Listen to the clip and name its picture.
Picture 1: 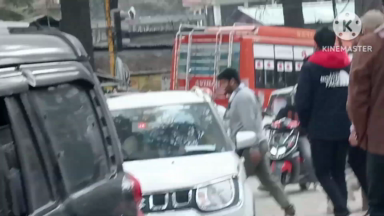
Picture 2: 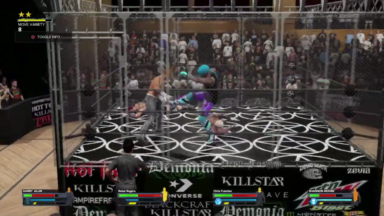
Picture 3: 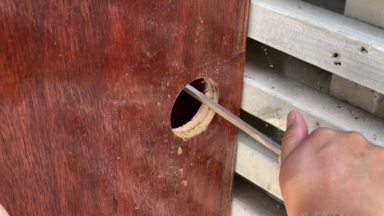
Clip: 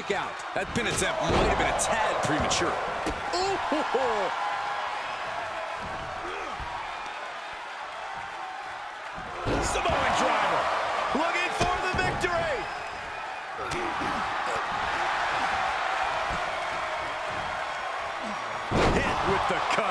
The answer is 2